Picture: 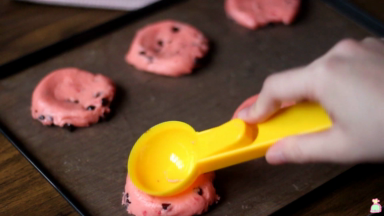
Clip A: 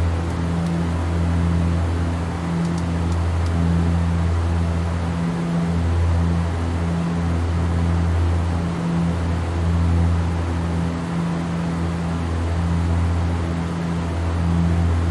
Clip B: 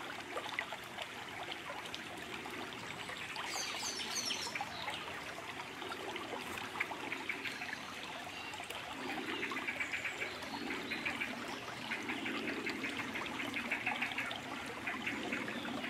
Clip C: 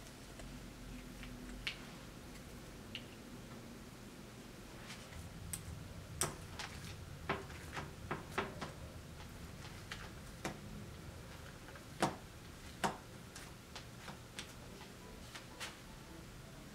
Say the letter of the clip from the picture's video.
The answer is C